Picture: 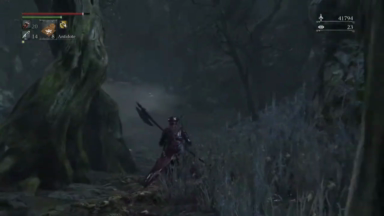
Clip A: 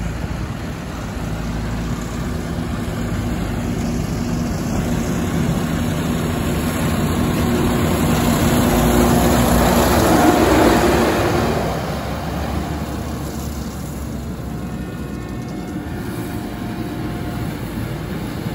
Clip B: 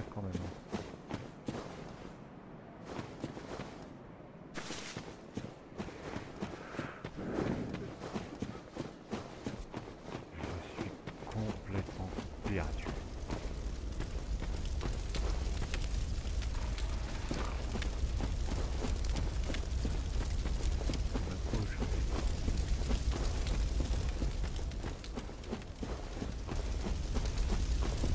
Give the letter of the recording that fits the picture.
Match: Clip B